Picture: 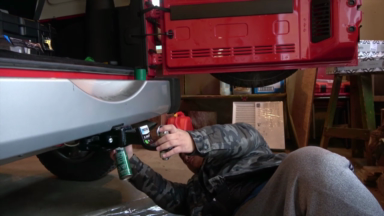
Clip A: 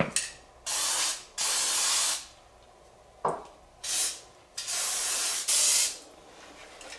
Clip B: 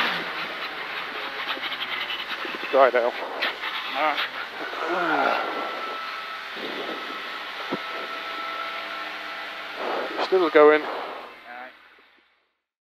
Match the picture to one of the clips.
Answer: A